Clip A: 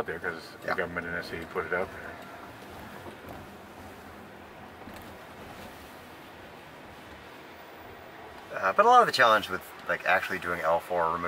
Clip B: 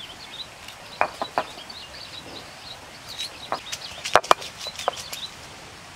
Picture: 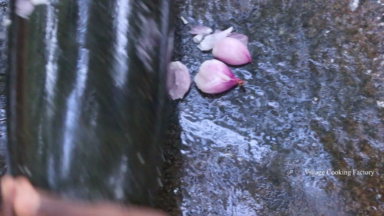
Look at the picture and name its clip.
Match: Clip B